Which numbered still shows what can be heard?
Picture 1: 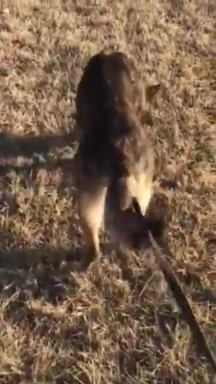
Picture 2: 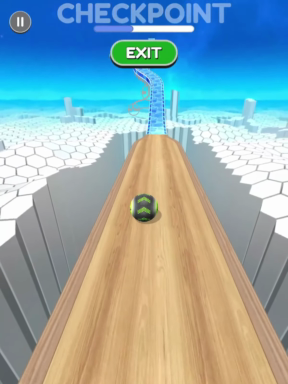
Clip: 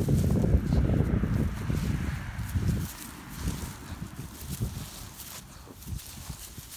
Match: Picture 1